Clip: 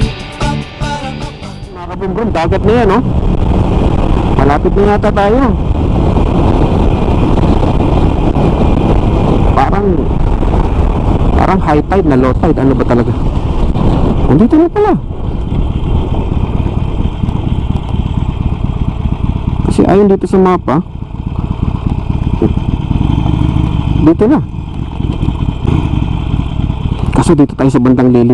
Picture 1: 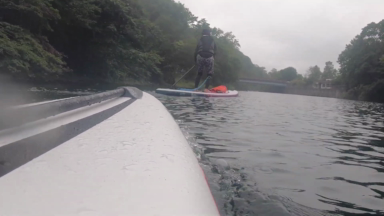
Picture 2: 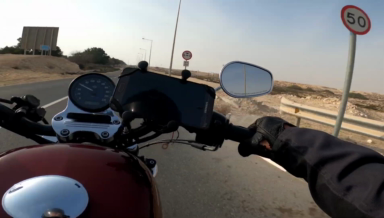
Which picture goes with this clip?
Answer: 2